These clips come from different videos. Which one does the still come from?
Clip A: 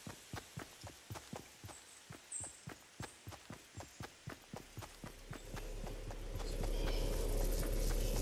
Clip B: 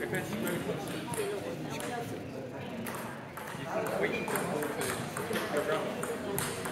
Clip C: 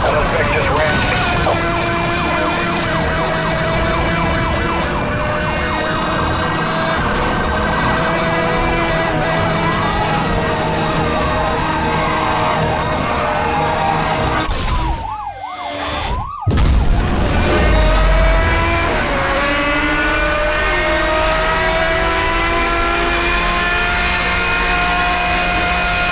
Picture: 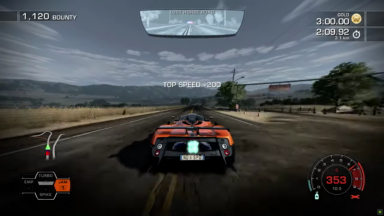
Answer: C